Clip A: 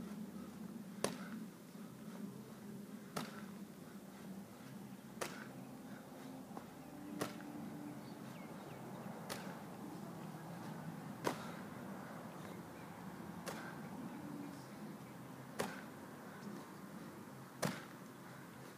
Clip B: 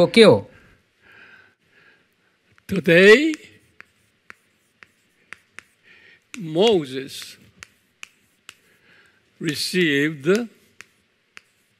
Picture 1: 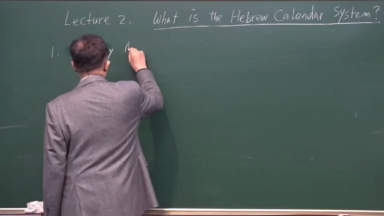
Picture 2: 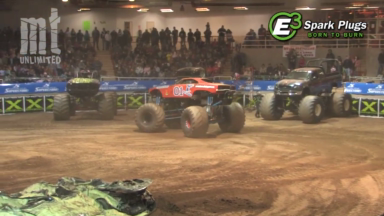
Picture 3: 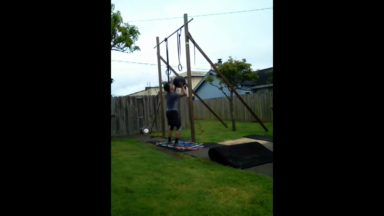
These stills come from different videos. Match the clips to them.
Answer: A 3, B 1